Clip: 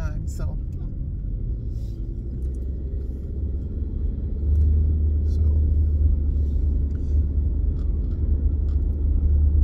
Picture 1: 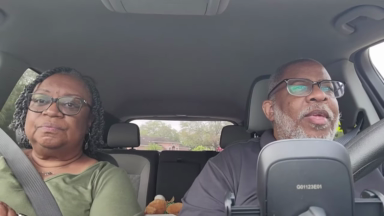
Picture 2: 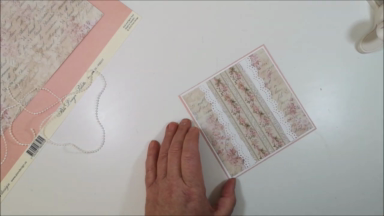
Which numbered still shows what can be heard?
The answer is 1